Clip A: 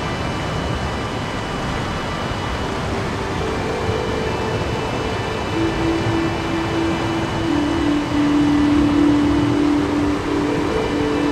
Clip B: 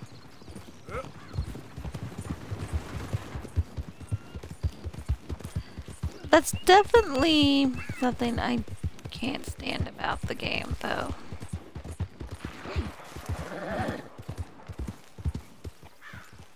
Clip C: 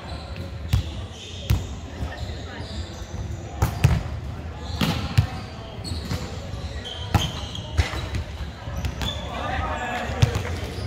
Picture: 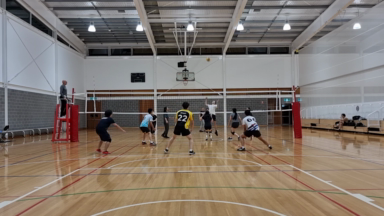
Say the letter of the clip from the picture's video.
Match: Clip C